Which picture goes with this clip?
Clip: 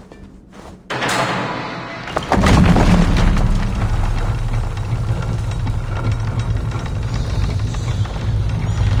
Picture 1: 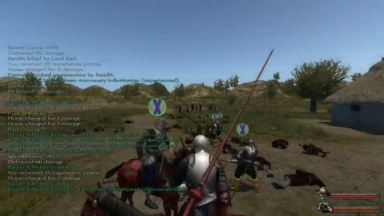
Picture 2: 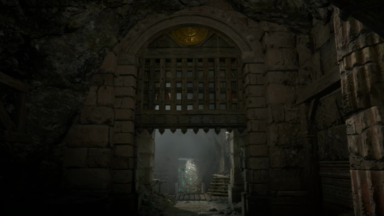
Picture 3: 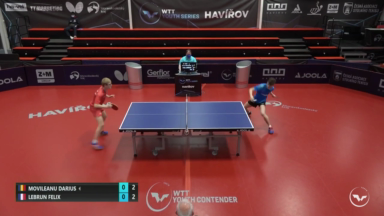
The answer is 2